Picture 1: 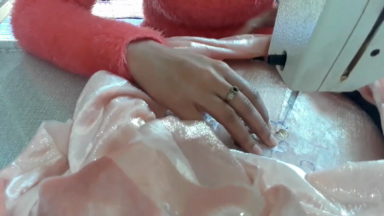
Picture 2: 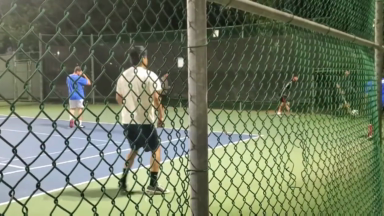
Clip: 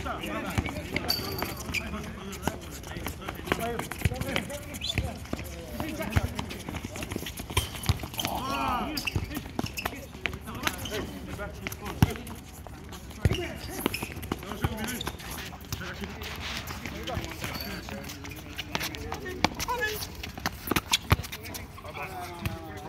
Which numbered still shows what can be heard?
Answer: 2